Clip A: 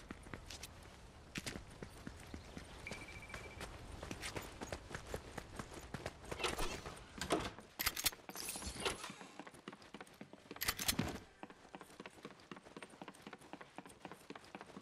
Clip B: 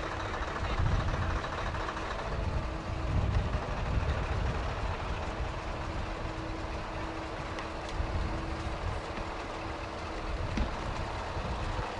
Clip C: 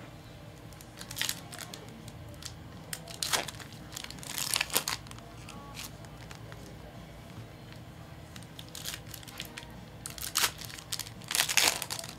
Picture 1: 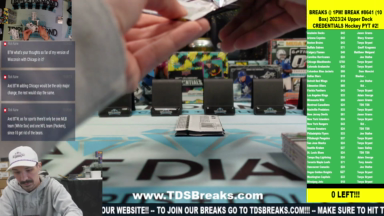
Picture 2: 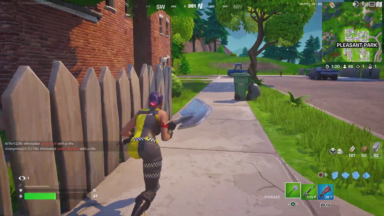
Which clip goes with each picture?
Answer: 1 C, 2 A